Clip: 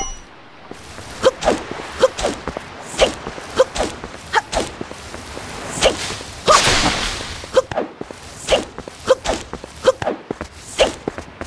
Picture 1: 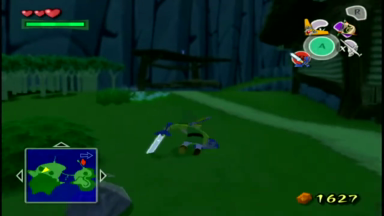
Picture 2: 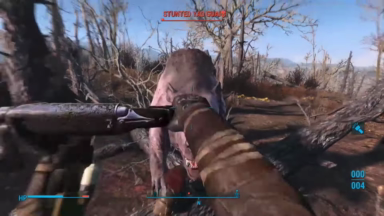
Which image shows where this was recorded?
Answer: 1